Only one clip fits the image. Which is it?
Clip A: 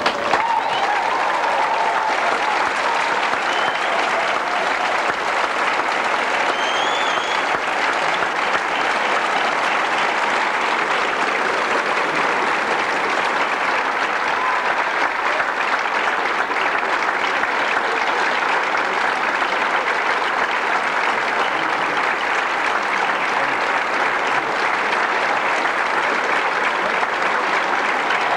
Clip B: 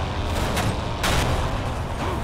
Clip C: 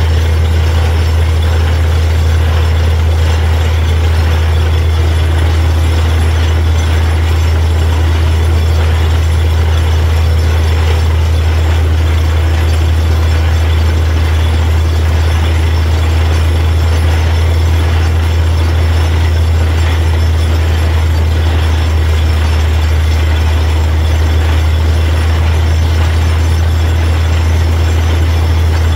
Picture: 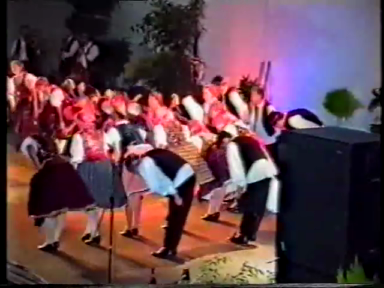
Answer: A